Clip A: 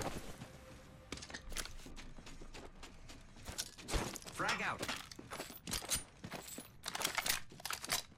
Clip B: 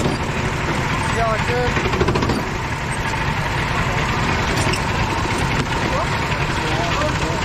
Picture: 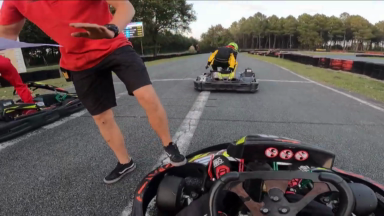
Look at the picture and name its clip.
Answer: B